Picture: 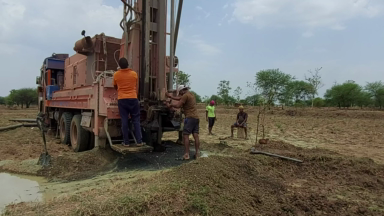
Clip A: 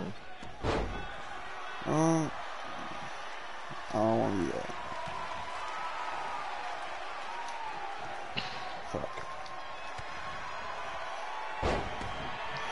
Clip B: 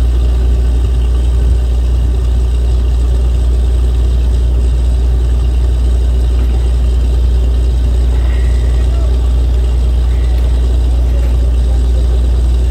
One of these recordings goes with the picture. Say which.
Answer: B